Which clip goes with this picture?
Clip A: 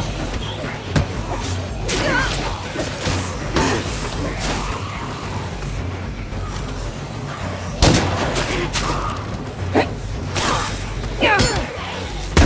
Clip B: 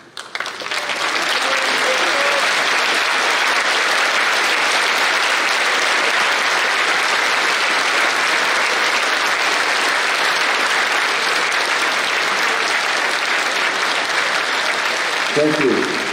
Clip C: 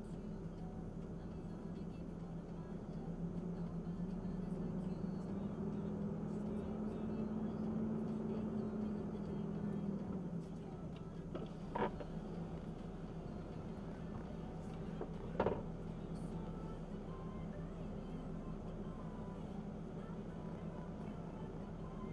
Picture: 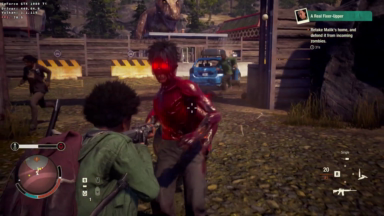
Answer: A